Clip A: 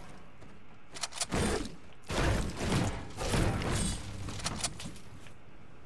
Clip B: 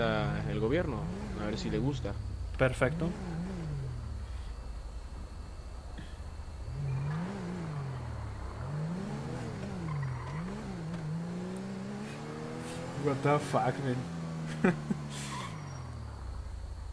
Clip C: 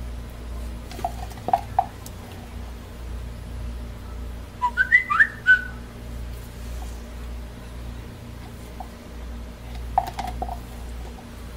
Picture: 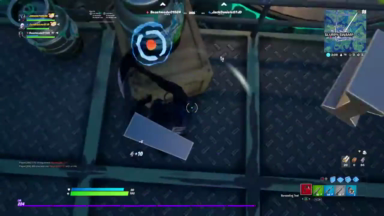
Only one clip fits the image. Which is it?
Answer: A